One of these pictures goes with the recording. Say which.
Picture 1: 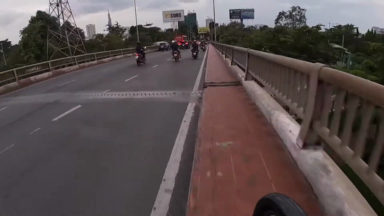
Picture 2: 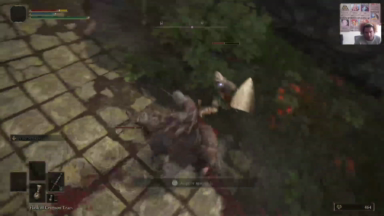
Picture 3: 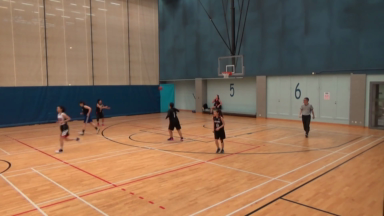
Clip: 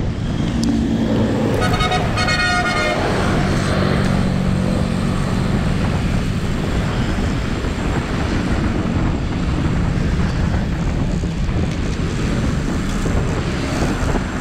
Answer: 1